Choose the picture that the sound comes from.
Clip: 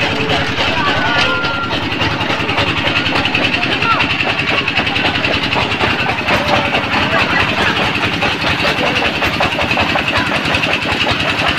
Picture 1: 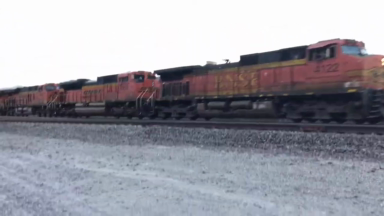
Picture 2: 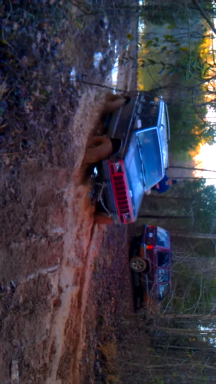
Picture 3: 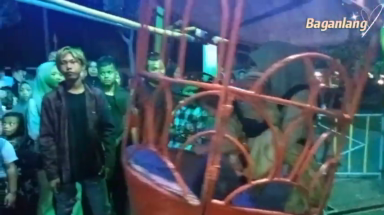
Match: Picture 3